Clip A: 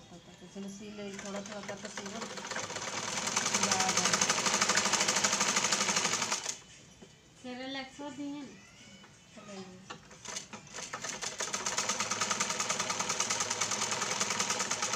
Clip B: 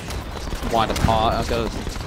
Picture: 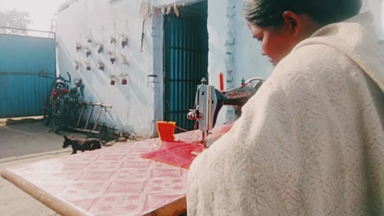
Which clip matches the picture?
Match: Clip A